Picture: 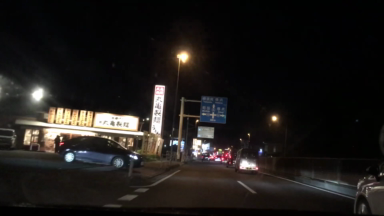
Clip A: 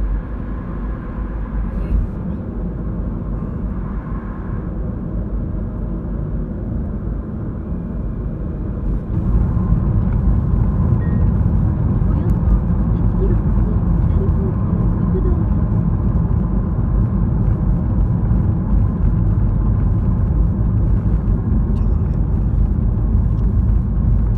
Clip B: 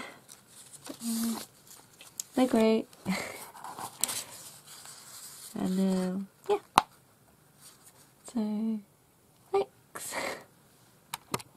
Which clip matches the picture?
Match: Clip A